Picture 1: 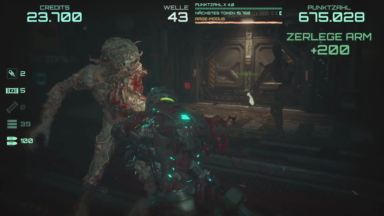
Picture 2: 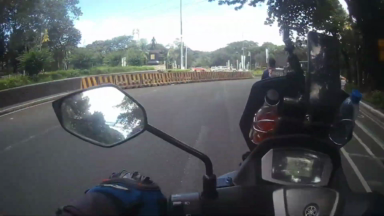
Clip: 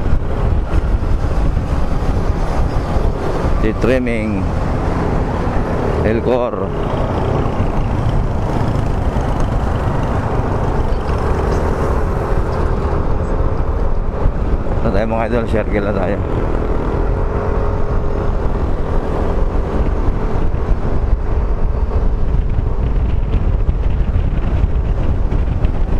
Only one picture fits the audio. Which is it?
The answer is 2